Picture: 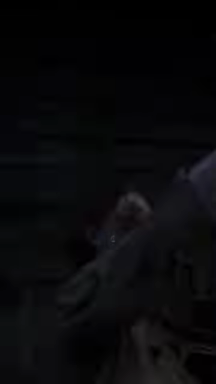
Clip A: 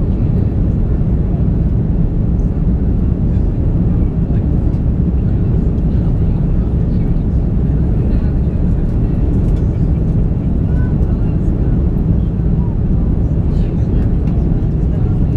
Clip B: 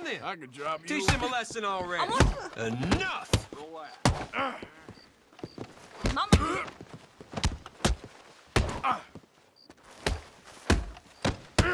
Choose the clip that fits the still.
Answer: B